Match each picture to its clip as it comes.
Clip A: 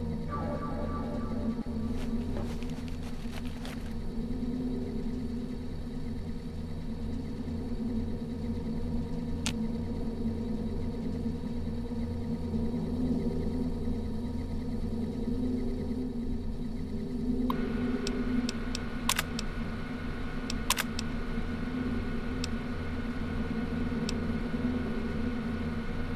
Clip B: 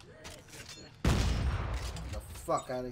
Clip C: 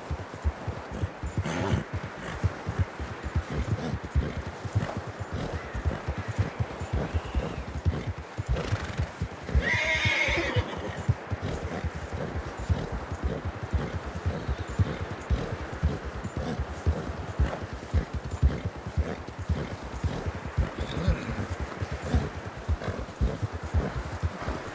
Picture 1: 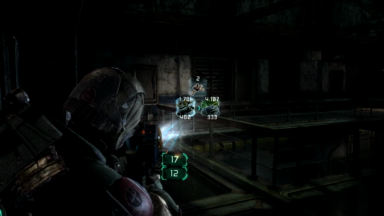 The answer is B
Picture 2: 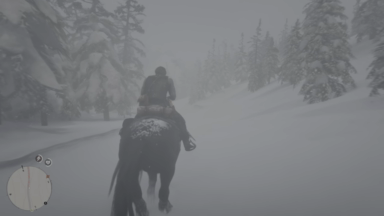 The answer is C